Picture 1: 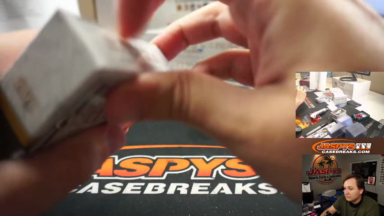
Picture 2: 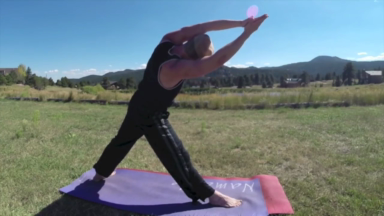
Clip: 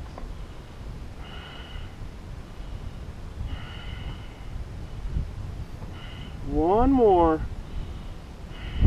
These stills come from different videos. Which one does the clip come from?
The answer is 2